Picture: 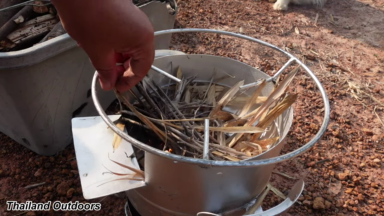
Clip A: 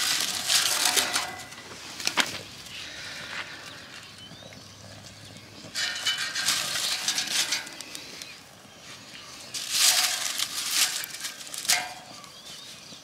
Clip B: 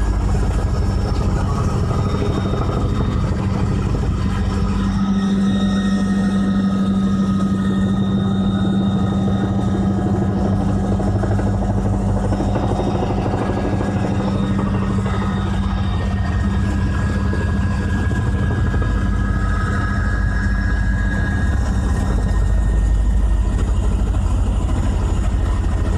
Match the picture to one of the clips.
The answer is A